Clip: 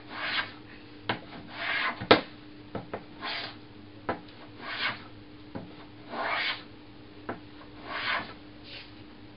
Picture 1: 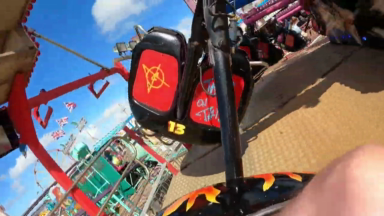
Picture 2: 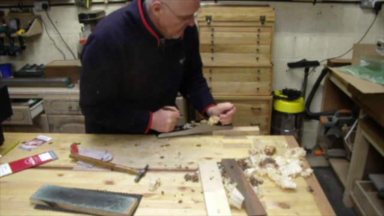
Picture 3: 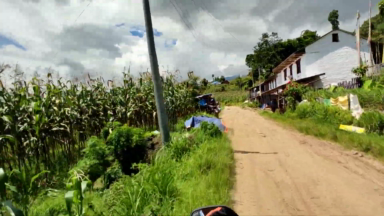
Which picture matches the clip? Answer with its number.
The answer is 2